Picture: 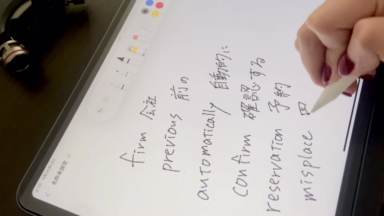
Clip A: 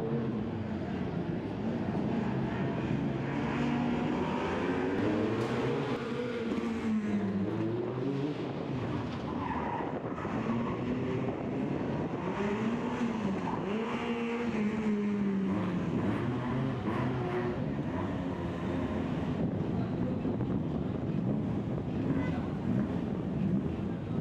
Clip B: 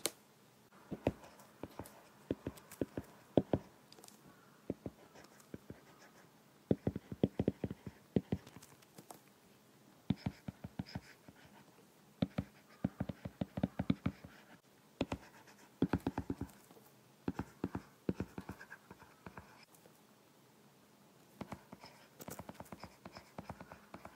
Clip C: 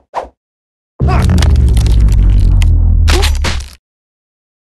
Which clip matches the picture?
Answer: B